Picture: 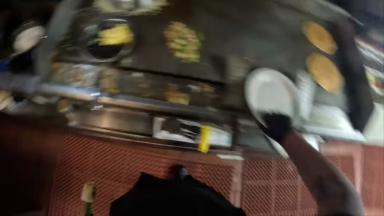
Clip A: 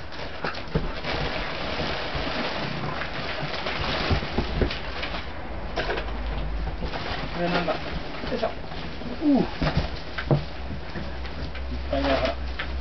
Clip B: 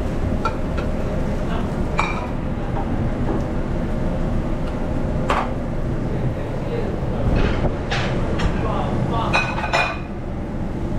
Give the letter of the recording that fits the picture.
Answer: B